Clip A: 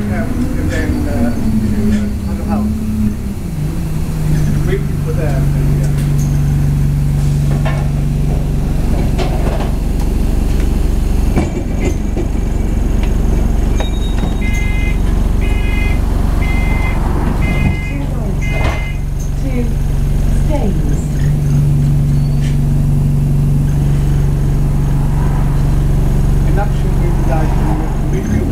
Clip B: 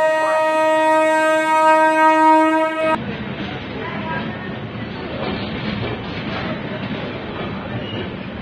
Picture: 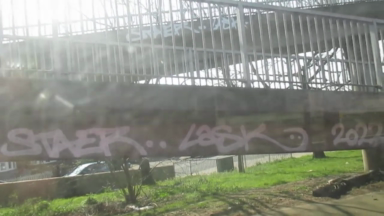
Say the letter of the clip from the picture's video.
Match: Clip A